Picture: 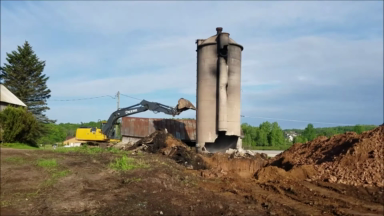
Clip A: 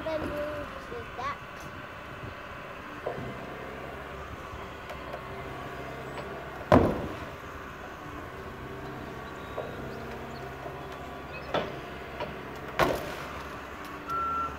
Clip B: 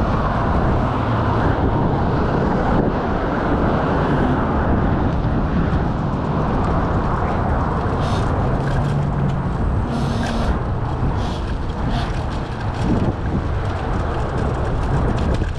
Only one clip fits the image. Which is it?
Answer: A